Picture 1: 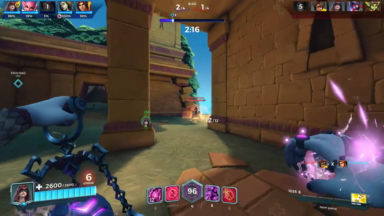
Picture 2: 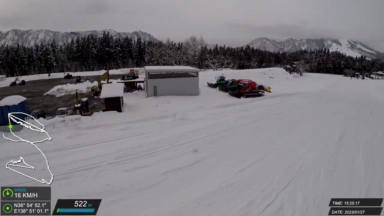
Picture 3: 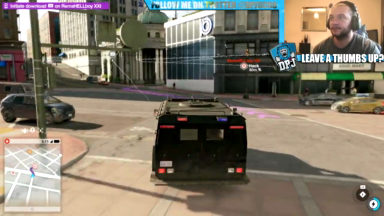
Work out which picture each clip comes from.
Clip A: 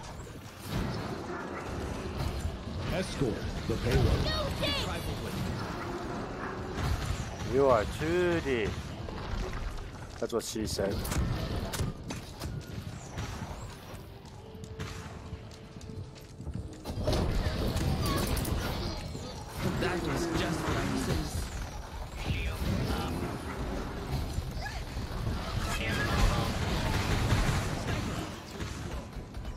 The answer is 1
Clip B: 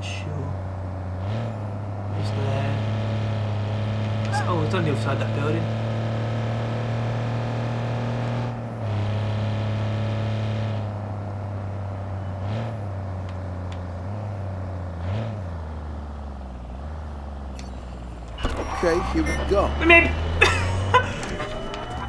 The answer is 3